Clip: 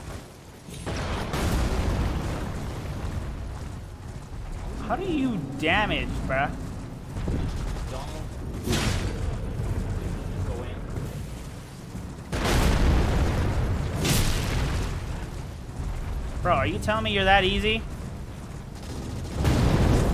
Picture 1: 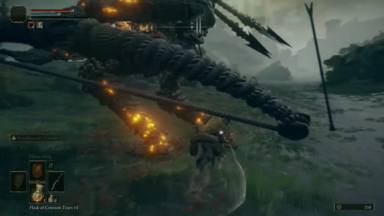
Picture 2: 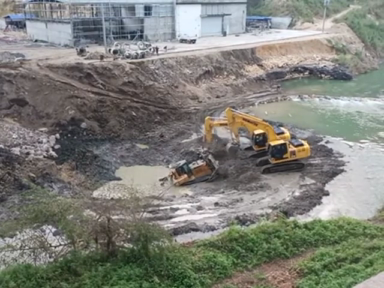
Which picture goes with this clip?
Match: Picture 1